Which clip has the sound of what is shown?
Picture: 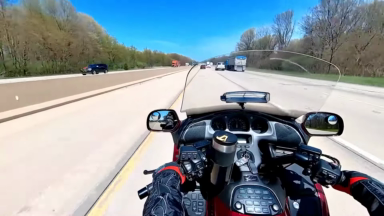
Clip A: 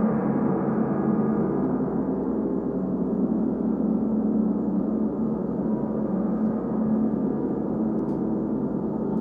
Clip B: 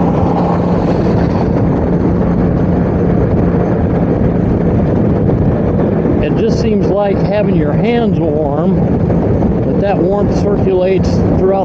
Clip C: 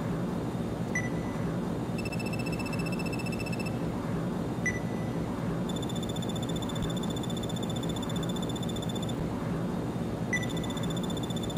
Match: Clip B